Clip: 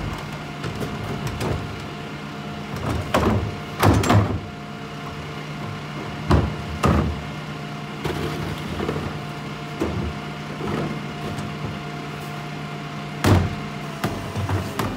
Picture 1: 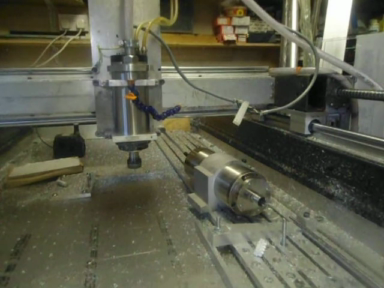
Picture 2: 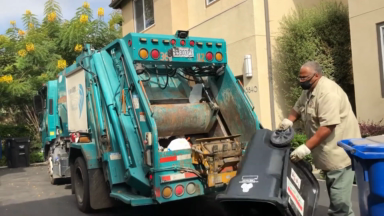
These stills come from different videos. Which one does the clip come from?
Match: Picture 2